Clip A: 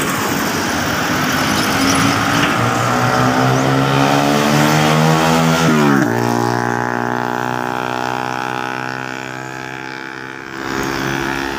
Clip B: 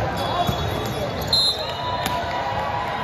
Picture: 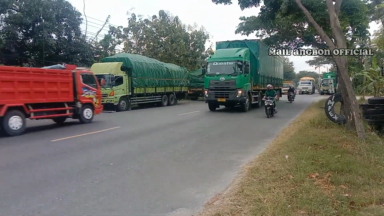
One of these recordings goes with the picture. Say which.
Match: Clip A